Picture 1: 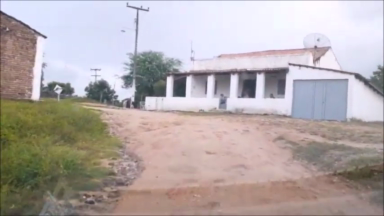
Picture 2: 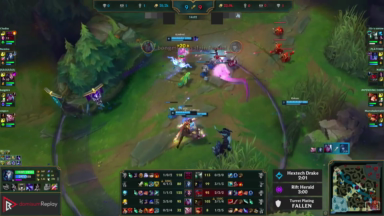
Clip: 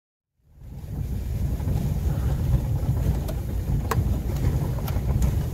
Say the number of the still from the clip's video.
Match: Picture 1